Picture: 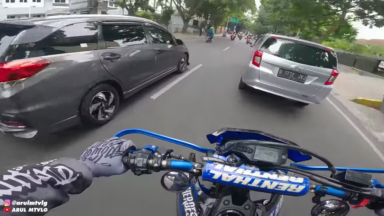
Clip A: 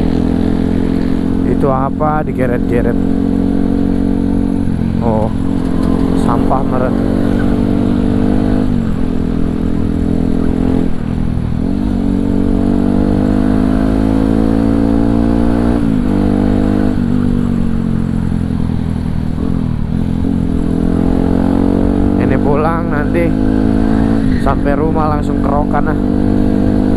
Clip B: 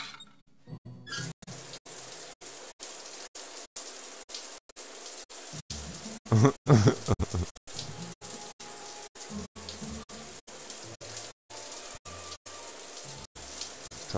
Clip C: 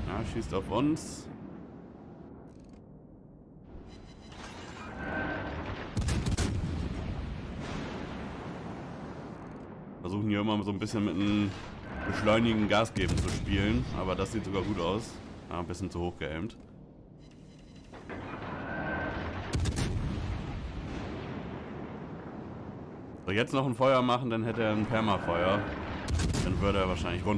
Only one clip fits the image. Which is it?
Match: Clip A